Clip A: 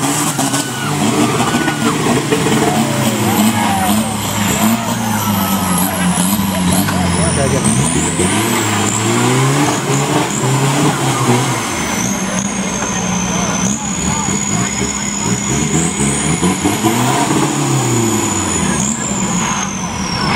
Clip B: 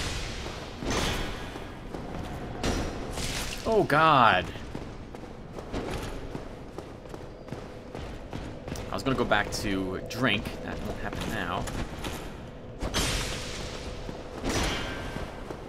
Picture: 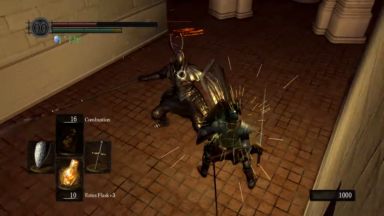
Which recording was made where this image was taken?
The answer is B